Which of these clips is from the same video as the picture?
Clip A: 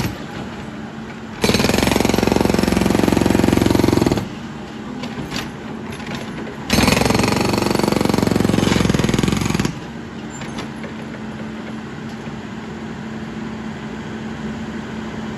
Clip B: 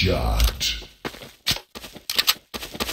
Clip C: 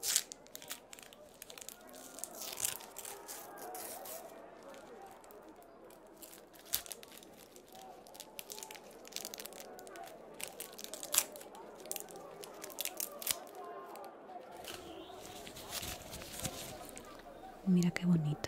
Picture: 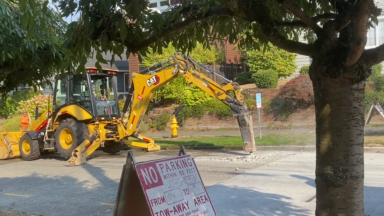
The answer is A